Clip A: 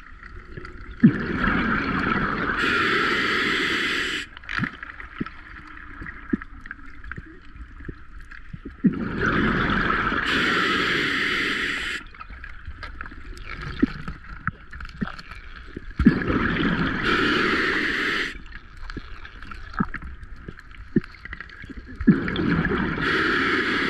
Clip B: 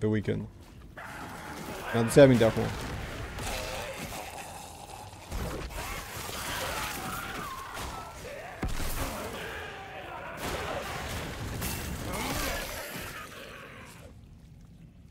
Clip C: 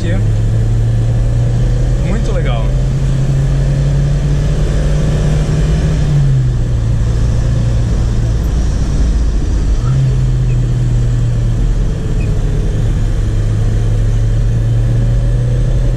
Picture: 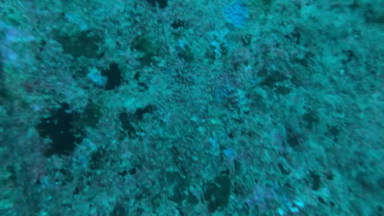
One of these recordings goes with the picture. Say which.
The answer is A